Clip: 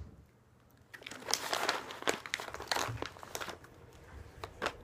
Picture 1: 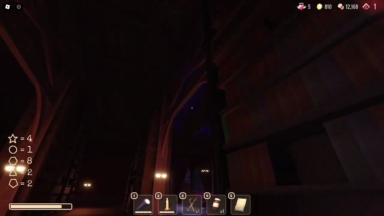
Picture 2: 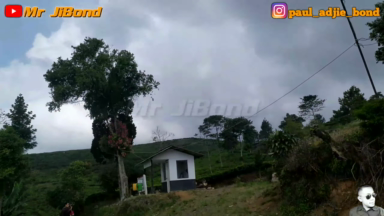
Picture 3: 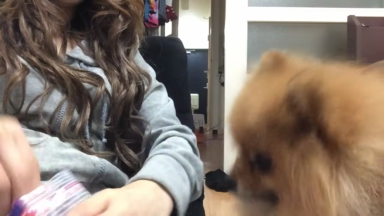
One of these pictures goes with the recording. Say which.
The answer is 3